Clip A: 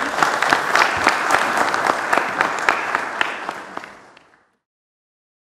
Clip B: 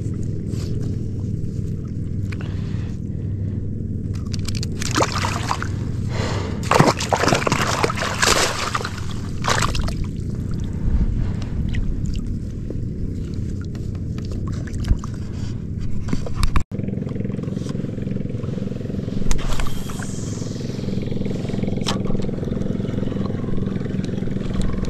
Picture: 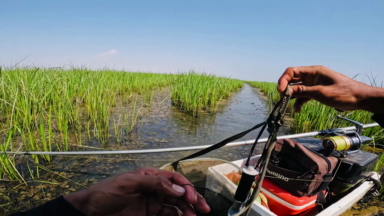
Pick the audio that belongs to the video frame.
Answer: B